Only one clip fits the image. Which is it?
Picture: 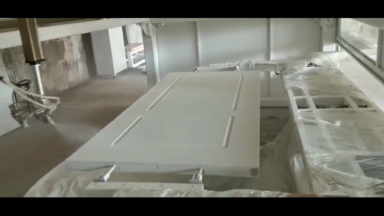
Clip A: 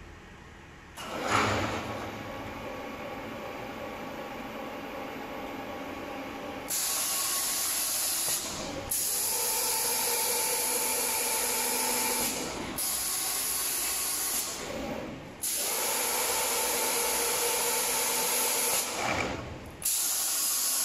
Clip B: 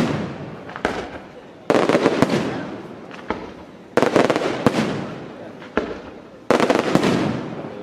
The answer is A